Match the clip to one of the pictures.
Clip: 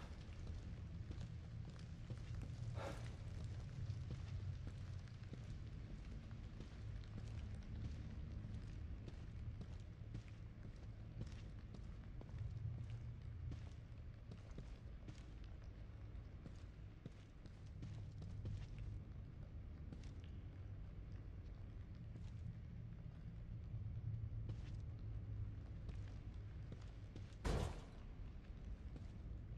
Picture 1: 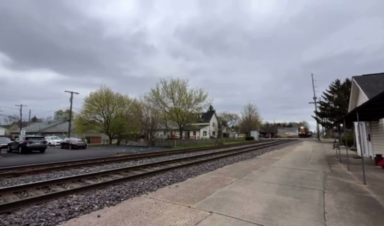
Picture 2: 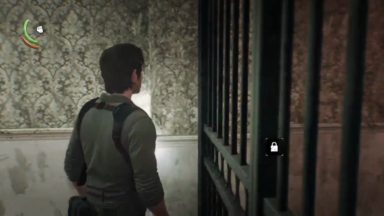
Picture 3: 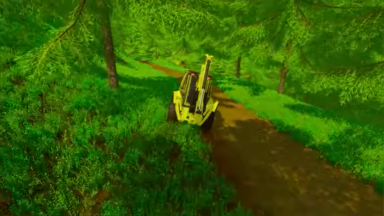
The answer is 2